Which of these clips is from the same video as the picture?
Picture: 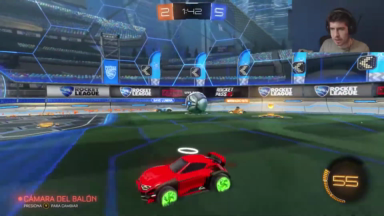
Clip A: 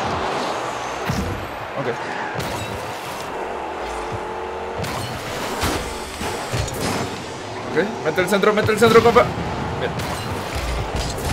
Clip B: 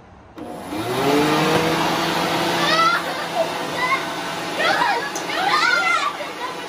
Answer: A